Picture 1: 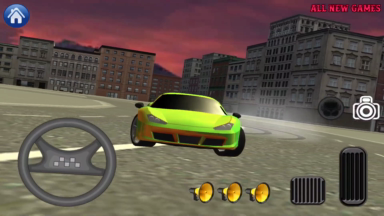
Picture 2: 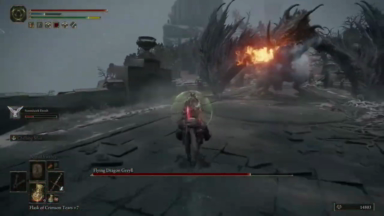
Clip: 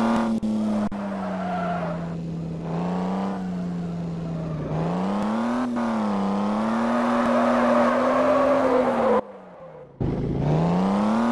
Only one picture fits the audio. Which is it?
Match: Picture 1